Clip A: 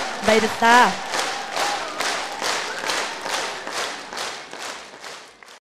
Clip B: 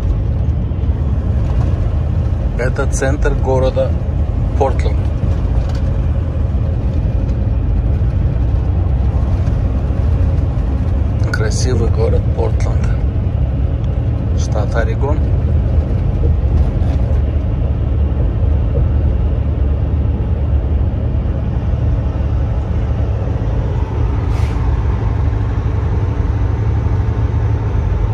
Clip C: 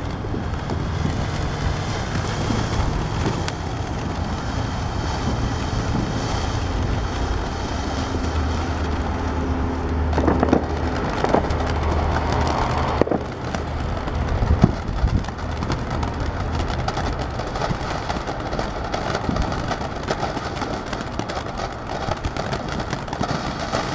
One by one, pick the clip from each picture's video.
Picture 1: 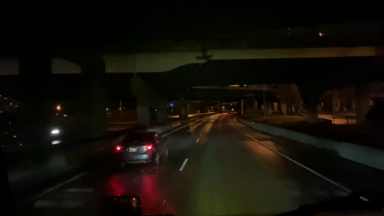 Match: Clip B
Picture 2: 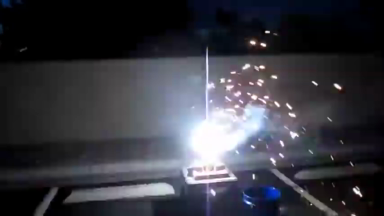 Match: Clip C